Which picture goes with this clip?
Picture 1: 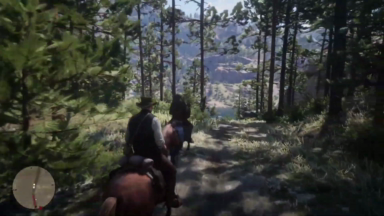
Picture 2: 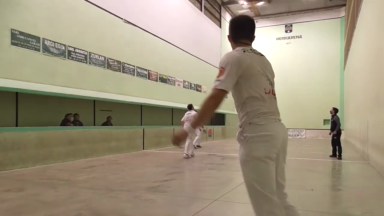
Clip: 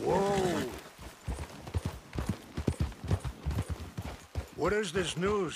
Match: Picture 1